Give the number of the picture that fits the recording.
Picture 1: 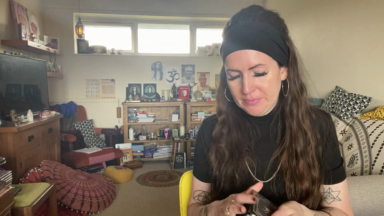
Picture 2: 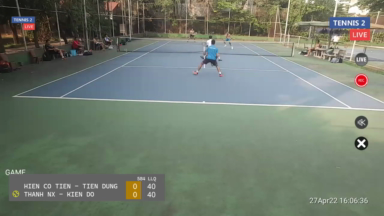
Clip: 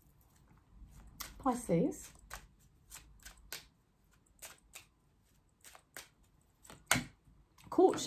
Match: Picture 1